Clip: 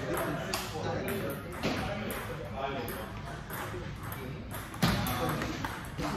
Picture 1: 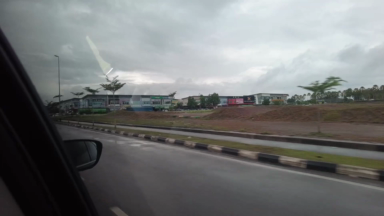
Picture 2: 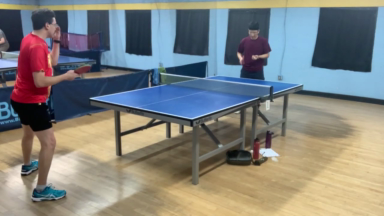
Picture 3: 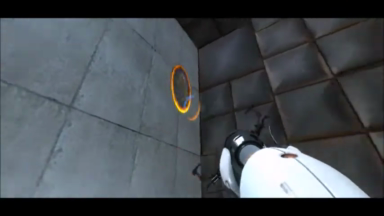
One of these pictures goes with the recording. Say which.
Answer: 2